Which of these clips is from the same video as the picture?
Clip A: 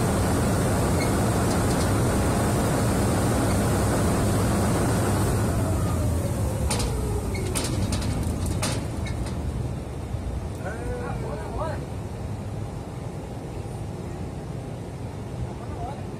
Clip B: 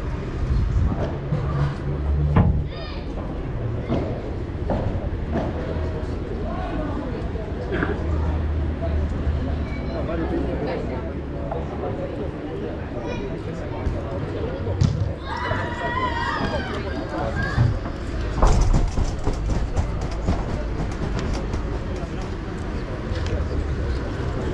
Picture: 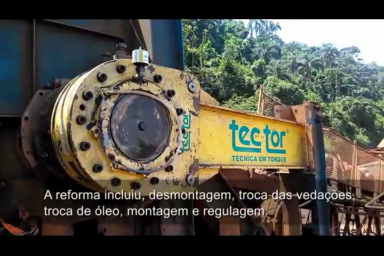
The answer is A